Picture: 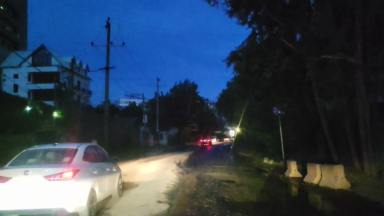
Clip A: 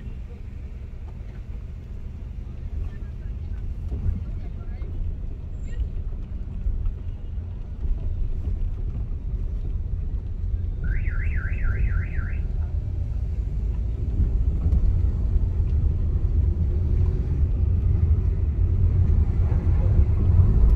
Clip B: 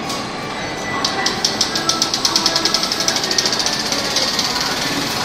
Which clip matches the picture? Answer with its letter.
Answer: A